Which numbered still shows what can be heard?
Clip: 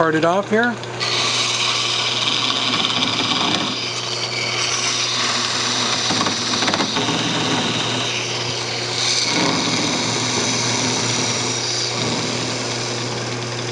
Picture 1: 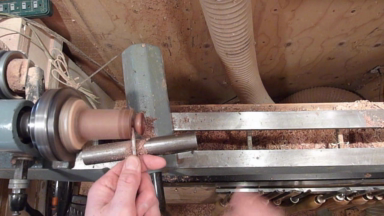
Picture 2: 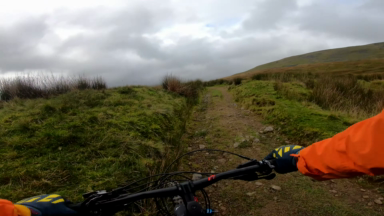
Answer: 1